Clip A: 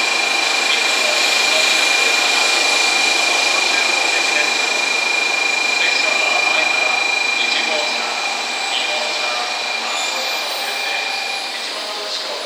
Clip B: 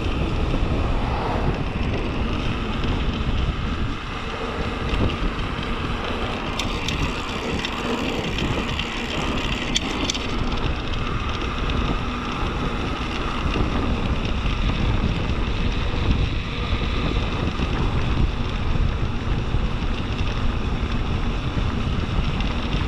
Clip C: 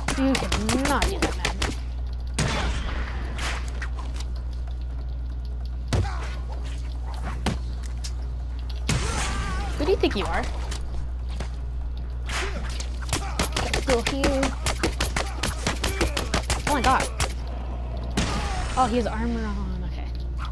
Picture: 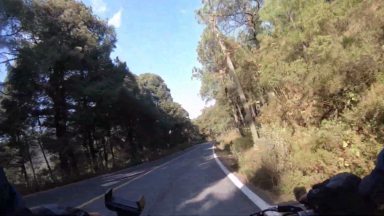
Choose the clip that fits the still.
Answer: B